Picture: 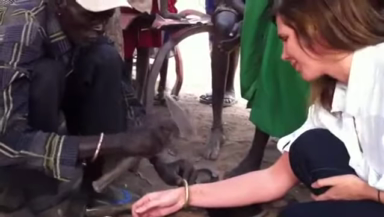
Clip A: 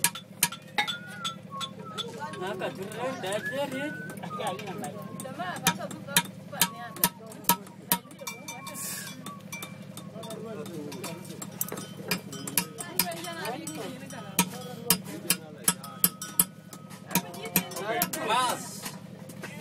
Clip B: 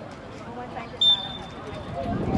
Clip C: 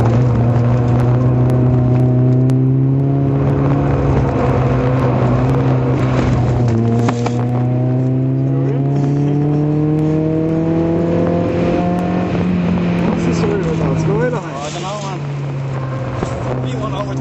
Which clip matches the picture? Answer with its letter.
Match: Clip A